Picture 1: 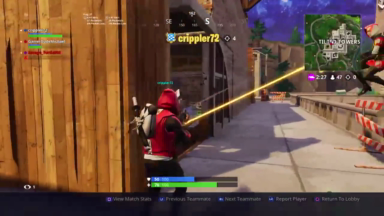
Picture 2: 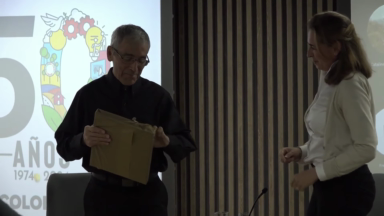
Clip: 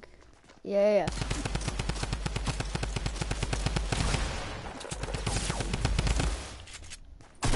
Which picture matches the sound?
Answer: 1